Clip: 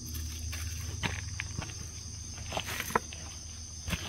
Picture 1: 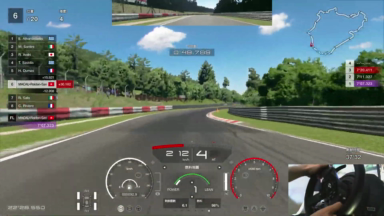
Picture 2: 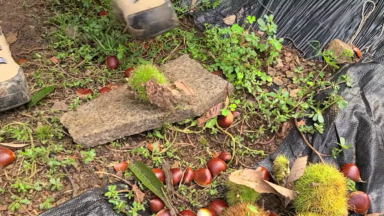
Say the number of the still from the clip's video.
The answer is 2